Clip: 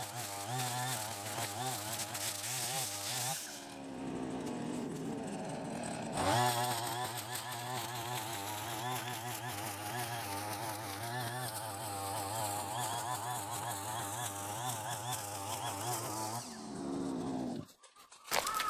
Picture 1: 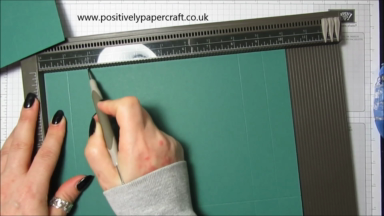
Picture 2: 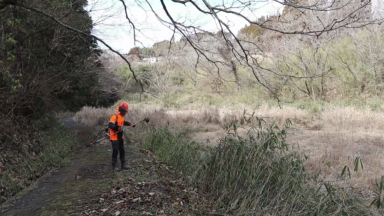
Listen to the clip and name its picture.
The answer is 2